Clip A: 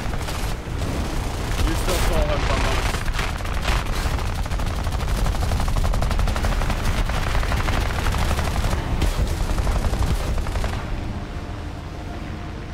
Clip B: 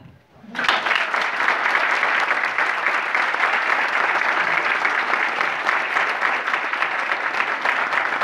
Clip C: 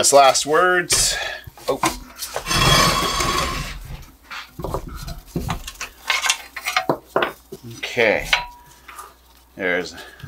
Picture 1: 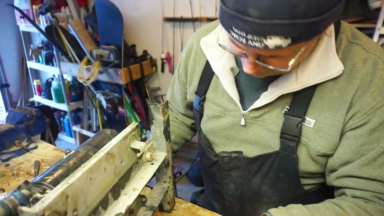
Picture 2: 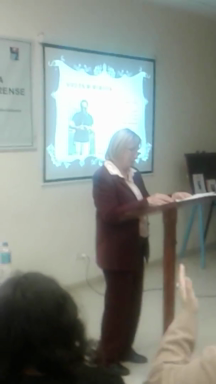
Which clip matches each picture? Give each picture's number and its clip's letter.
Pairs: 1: C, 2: B